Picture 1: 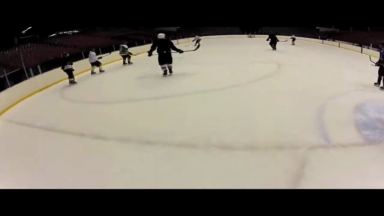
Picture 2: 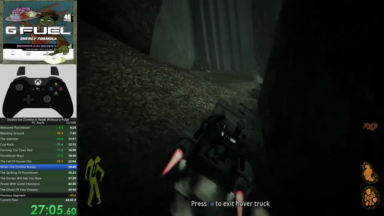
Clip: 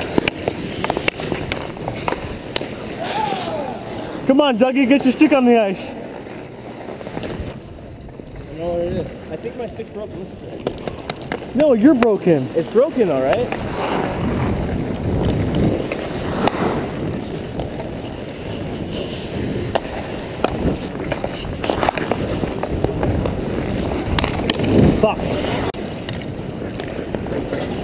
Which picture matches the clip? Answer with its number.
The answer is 1